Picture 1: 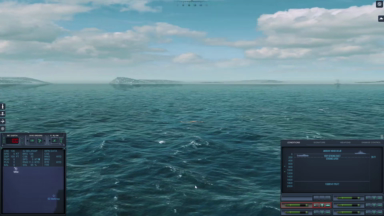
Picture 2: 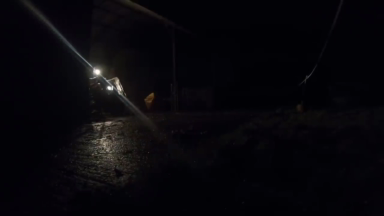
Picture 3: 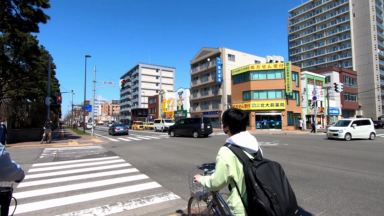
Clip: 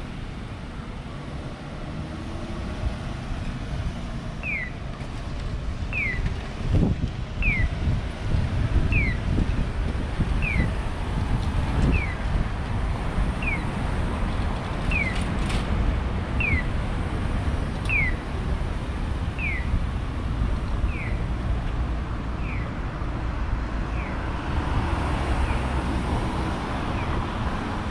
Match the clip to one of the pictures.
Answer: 3